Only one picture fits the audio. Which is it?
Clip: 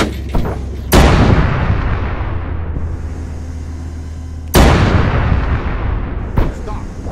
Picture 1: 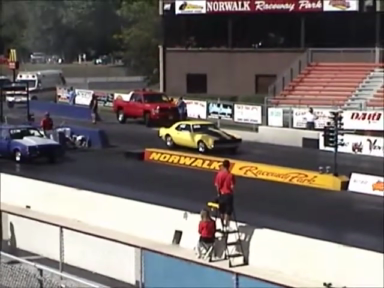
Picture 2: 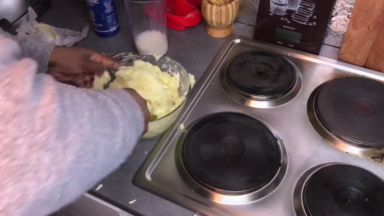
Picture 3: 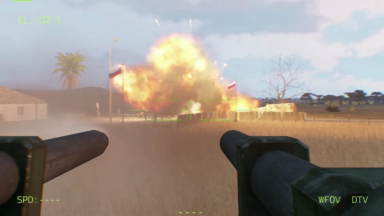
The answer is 3